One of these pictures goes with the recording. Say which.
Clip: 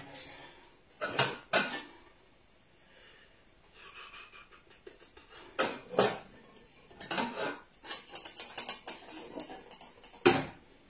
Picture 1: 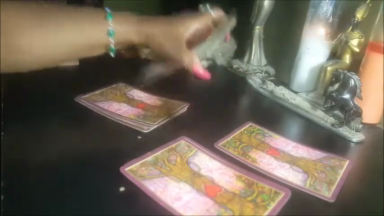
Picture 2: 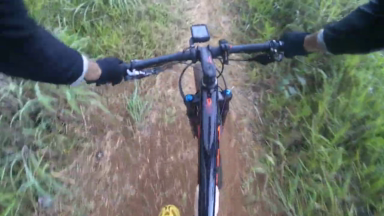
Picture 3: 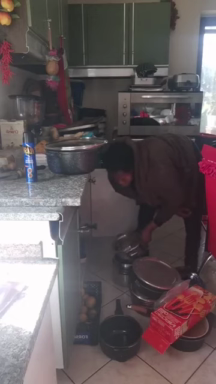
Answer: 3